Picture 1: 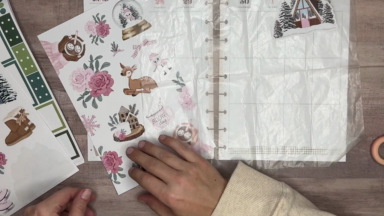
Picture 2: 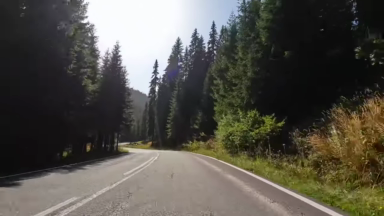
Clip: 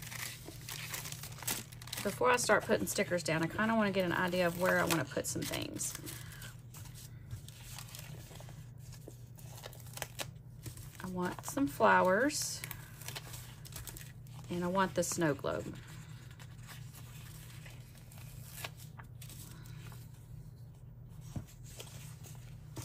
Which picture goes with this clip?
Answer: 1